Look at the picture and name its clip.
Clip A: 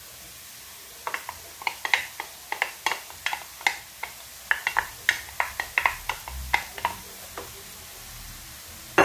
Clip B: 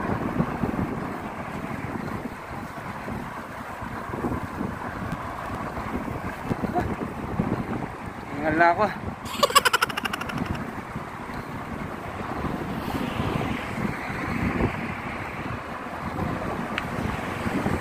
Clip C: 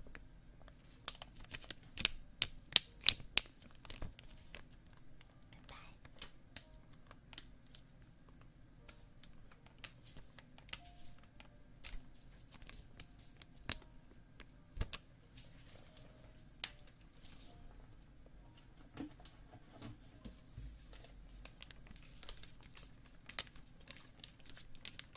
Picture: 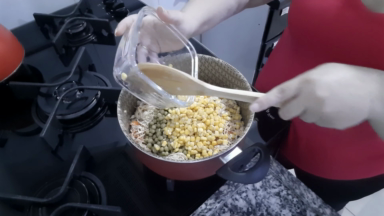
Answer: A